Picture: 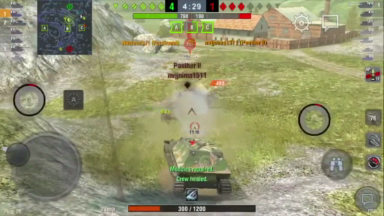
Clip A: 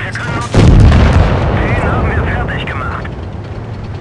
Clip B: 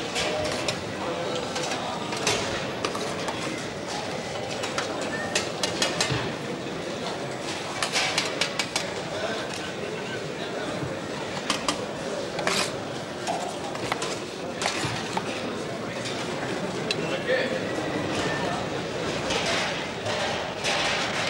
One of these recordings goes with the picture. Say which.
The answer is A